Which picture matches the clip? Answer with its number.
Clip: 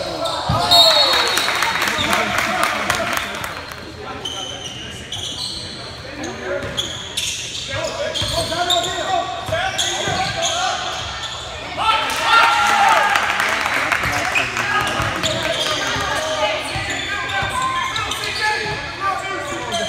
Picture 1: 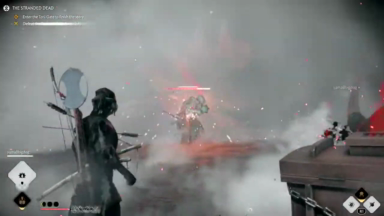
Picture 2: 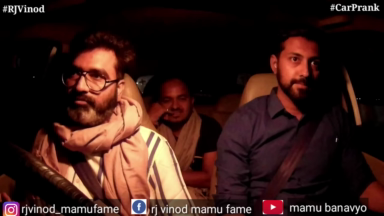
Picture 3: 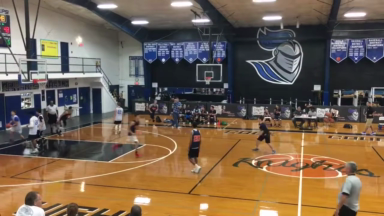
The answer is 3